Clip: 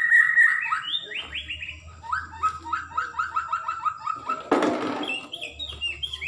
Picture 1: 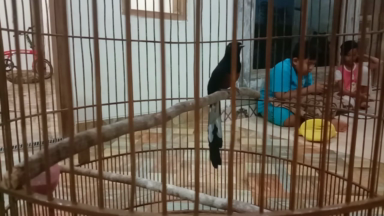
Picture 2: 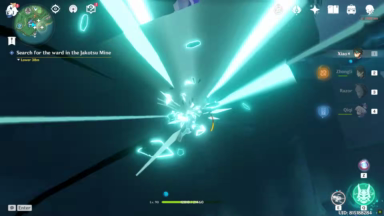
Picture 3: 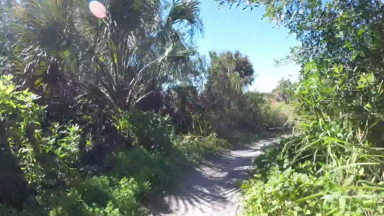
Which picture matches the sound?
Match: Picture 1